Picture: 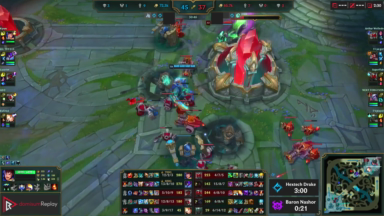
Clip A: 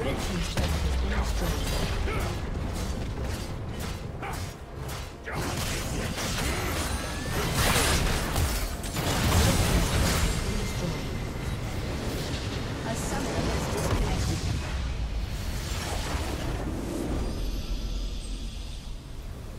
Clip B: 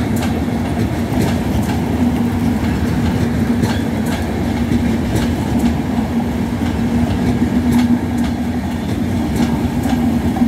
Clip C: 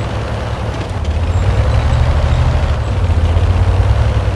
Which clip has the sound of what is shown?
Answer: A